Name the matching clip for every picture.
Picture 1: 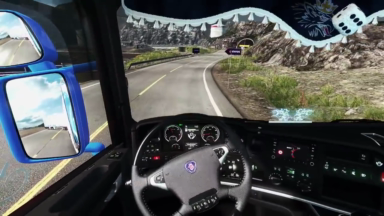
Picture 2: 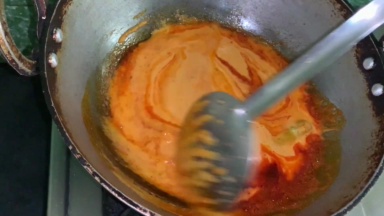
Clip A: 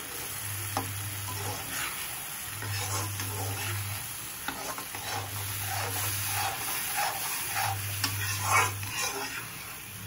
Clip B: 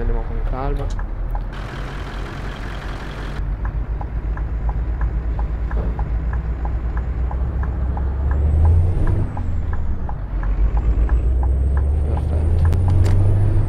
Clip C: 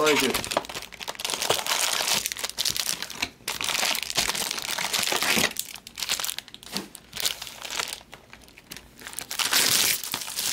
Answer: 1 B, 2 A